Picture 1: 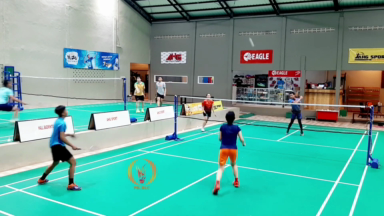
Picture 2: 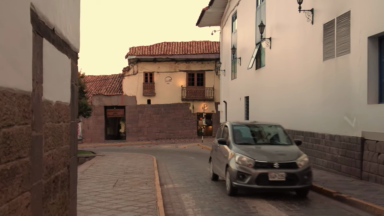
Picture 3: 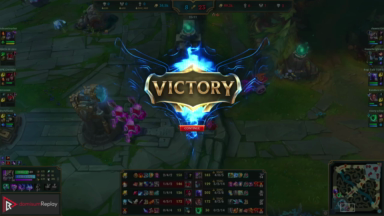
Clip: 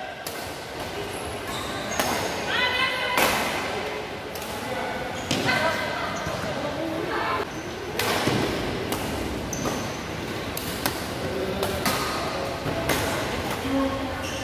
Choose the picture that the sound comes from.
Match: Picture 1